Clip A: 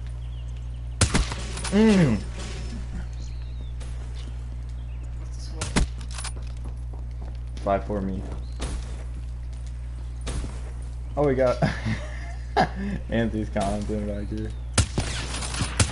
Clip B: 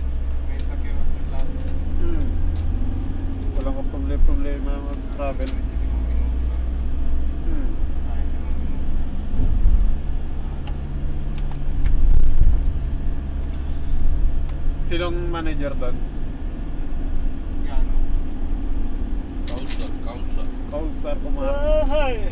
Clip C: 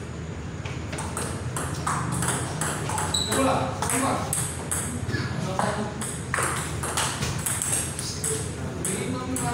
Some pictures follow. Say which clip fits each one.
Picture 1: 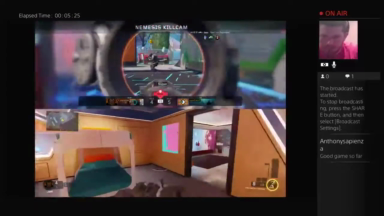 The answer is A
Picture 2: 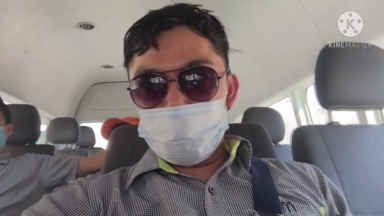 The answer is B